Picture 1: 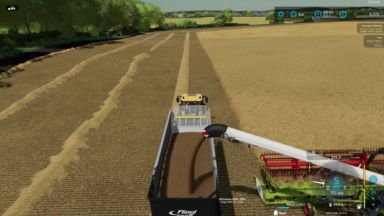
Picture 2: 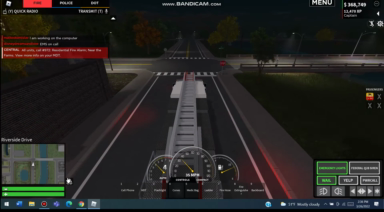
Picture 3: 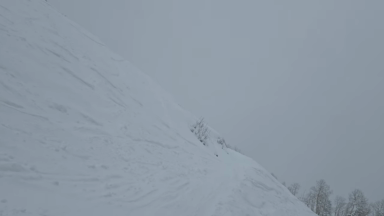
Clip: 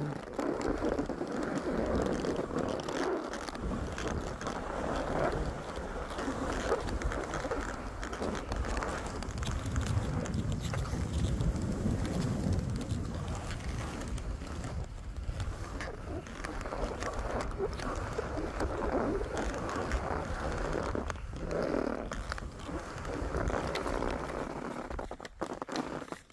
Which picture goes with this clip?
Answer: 3